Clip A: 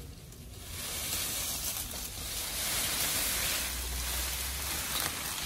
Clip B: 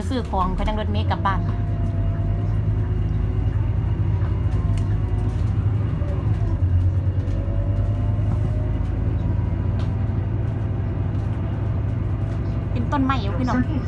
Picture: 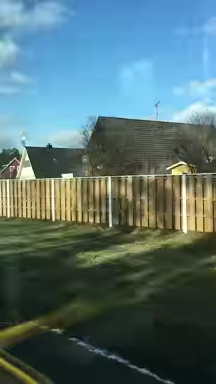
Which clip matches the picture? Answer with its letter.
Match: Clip B